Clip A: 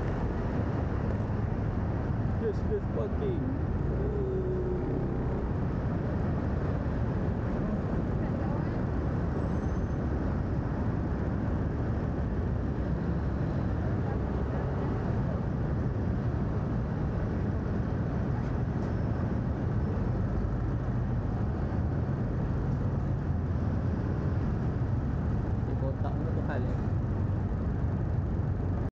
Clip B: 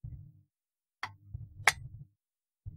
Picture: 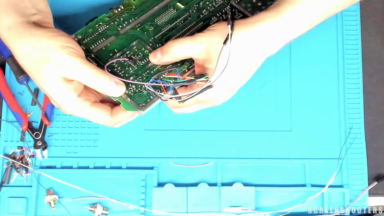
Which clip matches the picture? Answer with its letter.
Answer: B